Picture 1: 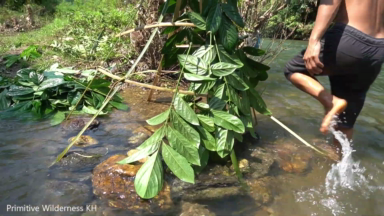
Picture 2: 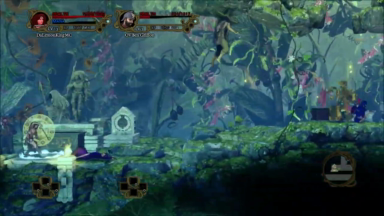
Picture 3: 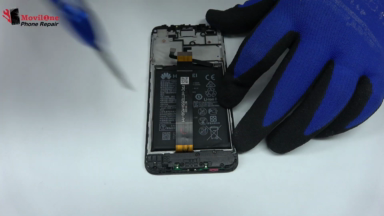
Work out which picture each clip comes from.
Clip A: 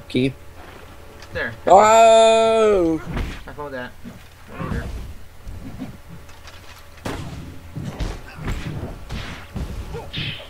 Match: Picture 2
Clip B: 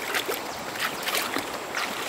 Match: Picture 1